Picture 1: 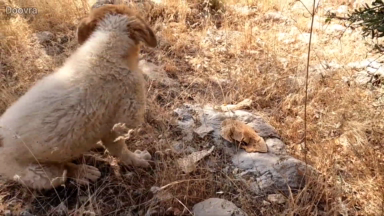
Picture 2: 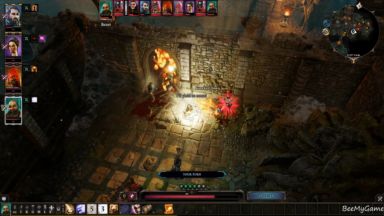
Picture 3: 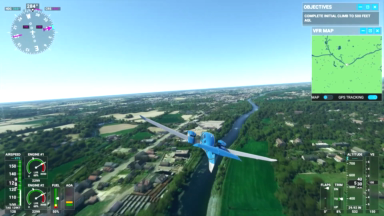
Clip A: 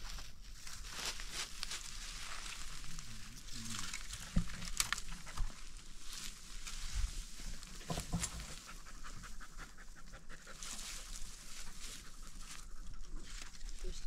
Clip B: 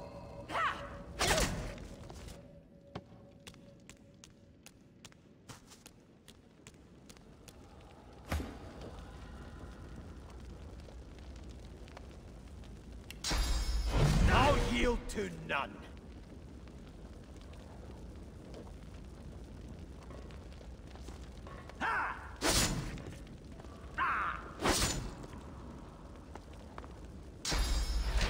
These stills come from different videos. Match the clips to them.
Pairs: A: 1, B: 2